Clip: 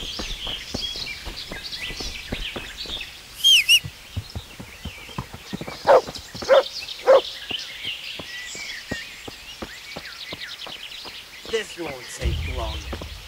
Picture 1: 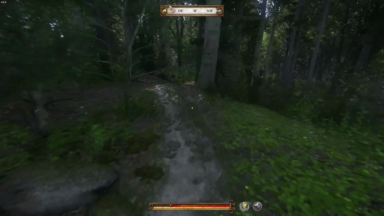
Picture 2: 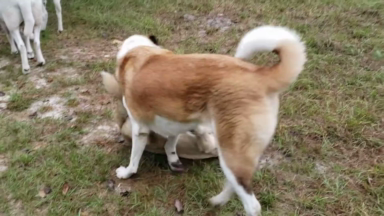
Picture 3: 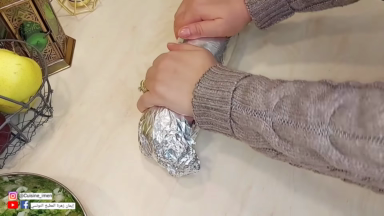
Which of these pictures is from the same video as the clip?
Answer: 1